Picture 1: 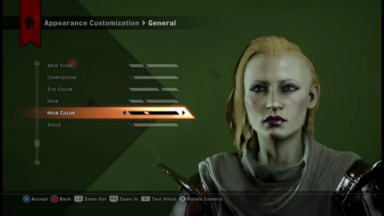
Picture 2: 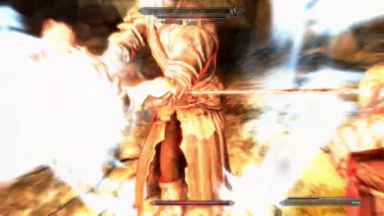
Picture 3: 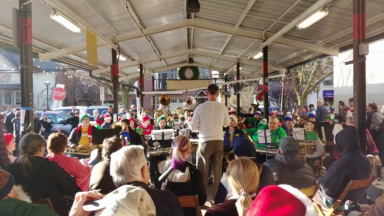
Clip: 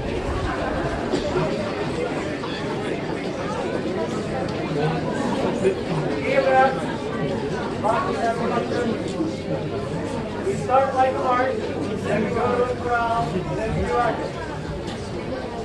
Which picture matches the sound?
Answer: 3